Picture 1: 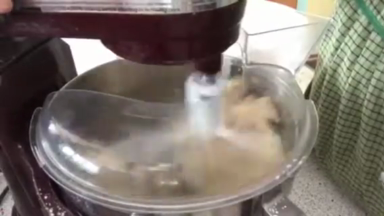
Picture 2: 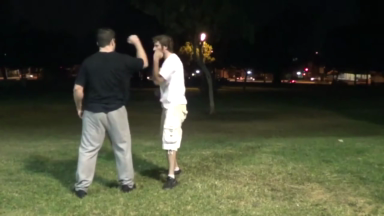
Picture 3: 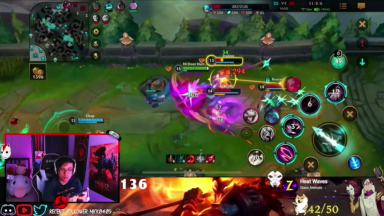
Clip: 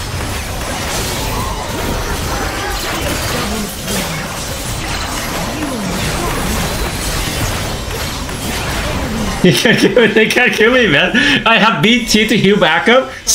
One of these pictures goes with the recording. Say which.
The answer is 3